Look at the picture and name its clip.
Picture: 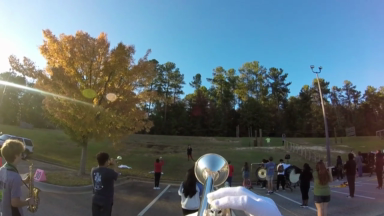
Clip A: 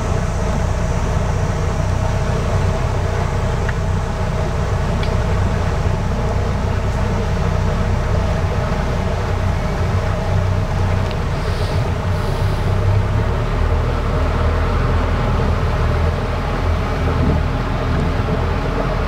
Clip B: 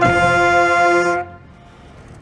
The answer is B